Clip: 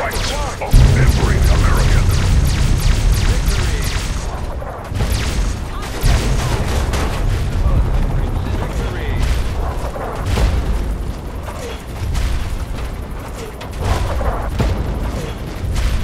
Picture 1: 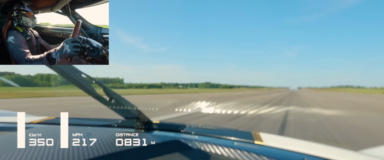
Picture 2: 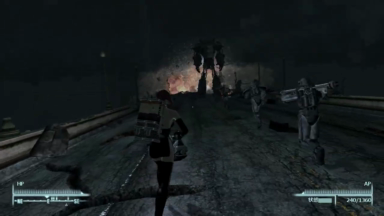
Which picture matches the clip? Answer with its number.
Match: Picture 2